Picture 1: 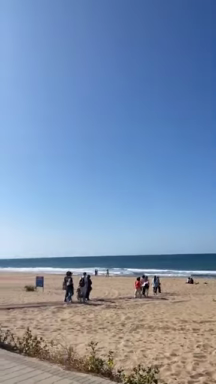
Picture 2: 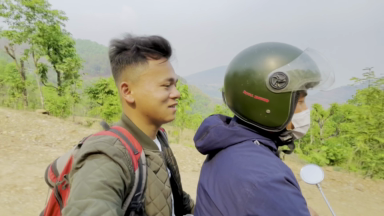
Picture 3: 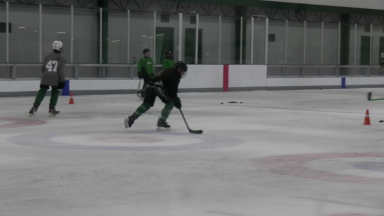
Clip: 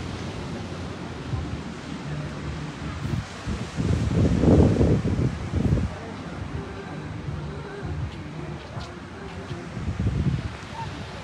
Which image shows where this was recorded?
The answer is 1